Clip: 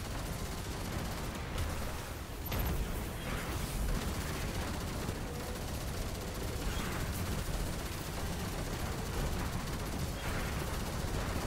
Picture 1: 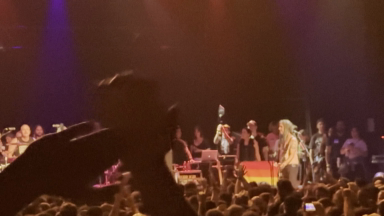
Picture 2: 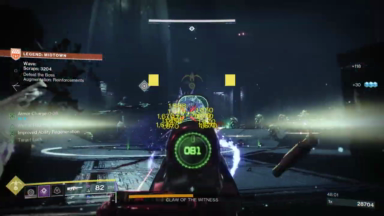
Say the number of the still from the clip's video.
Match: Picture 2